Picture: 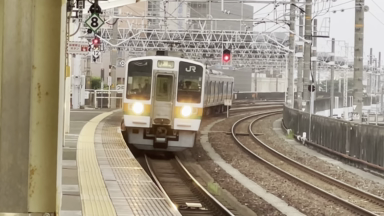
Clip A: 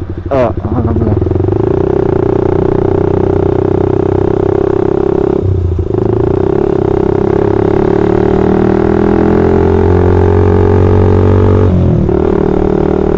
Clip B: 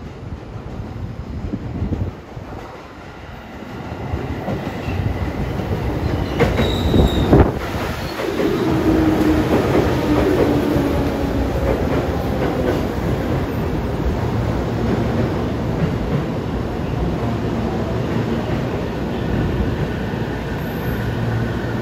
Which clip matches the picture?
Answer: B